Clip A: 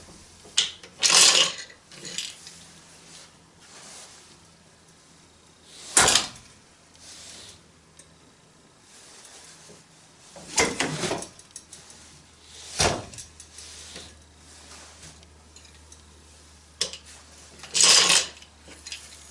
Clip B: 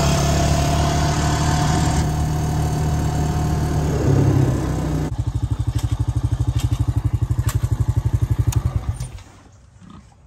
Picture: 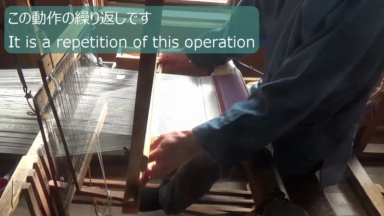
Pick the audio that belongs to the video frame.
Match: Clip A